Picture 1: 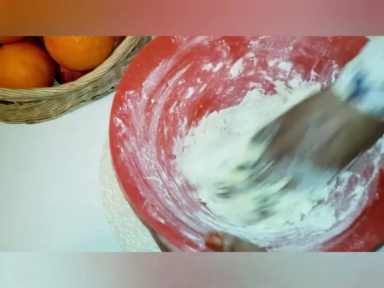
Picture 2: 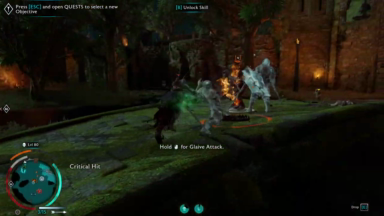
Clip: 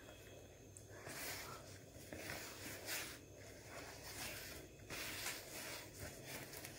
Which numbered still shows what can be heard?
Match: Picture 1